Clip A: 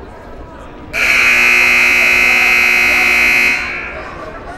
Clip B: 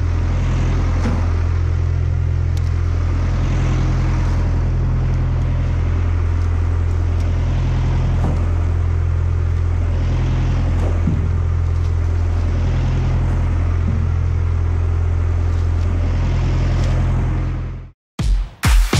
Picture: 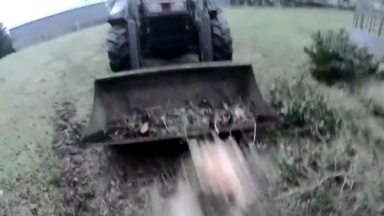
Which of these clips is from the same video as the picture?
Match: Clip B